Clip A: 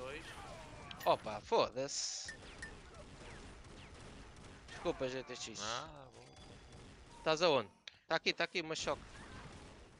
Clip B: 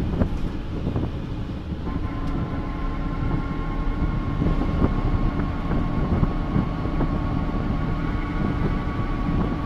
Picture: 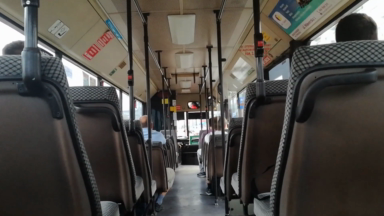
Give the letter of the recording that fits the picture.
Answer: B